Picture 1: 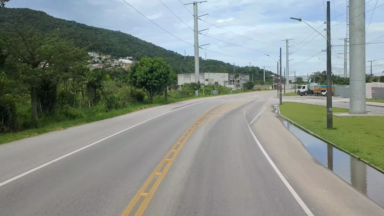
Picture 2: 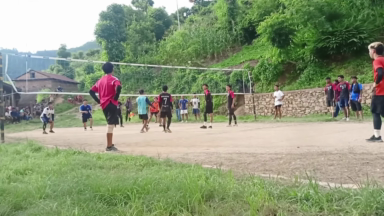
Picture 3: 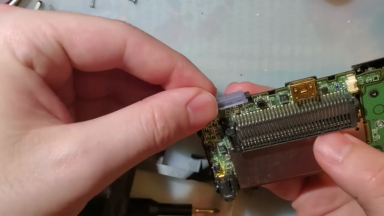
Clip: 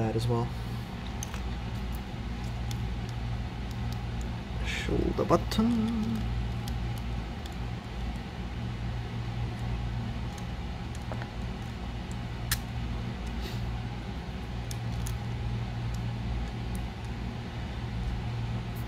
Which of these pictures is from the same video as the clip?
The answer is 3